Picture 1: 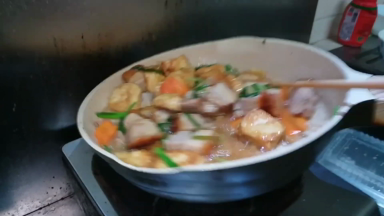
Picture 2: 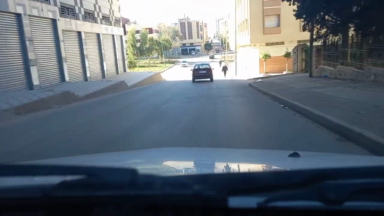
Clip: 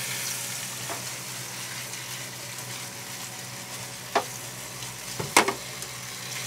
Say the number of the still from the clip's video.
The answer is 1